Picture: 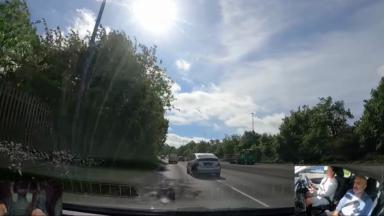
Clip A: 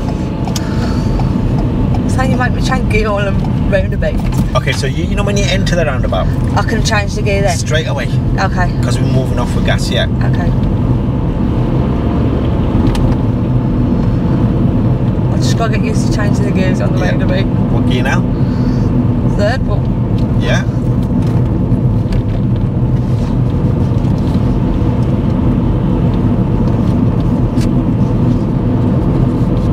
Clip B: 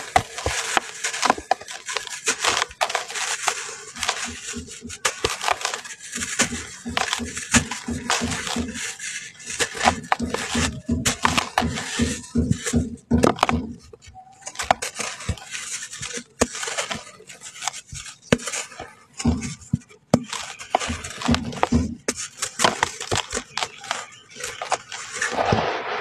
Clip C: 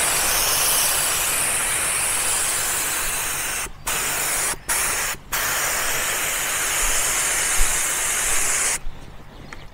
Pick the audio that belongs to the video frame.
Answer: A